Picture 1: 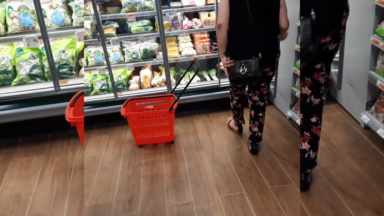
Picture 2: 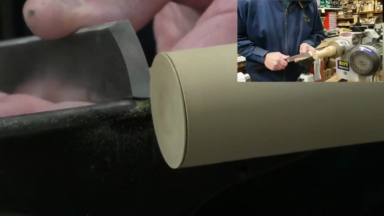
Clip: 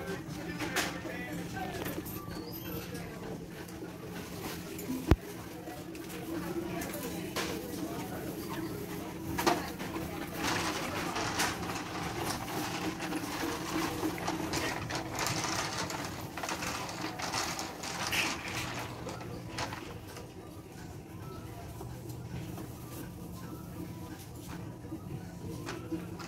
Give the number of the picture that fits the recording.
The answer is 1